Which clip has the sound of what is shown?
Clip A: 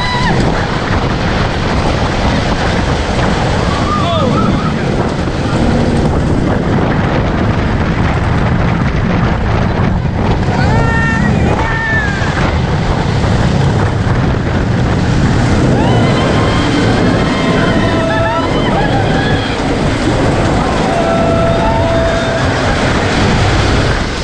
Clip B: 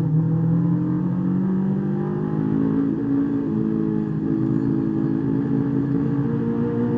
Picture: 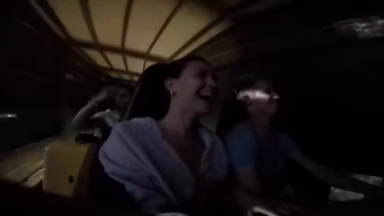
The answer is A